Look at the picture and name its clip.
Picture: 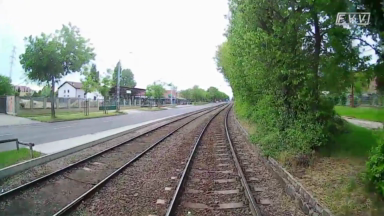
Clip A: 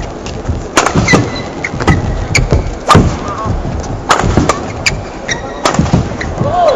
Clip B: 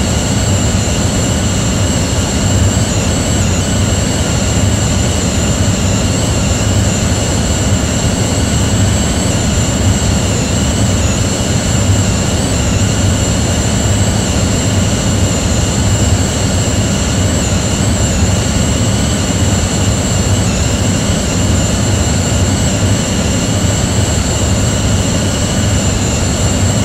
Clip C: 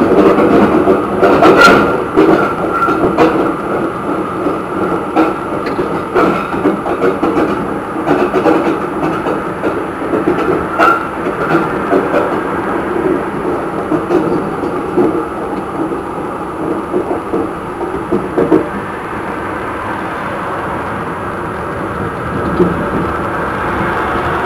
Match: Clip C